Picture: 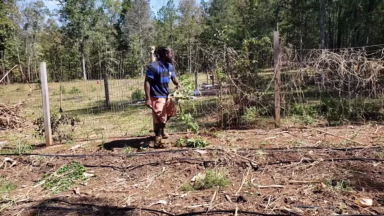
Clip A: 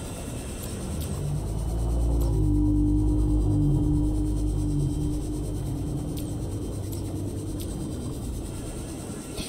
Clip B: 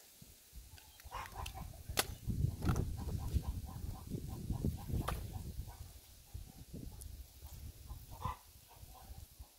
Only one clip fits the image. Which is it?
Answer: B